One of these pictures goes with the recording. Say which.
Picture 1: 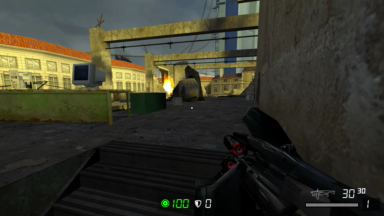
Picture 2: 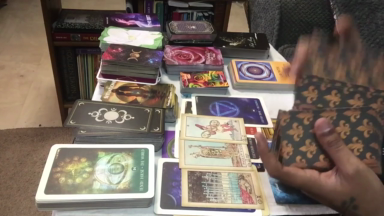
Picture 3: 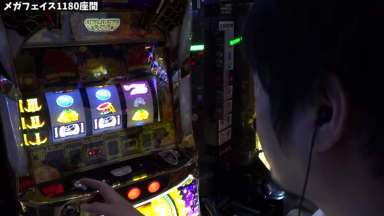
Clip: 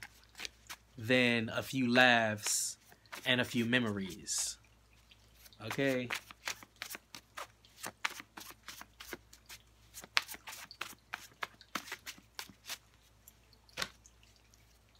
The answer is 2